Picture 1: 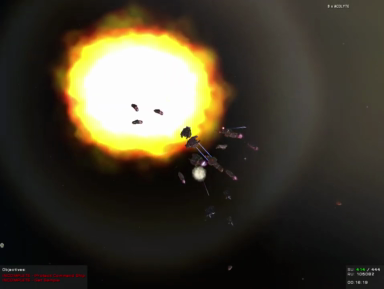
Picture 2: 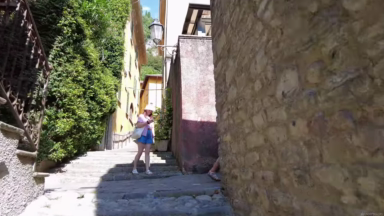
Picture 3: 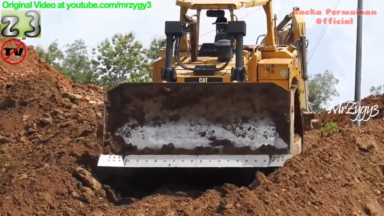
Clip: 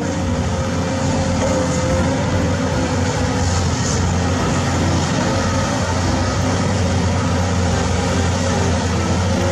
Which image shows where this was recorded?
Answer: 3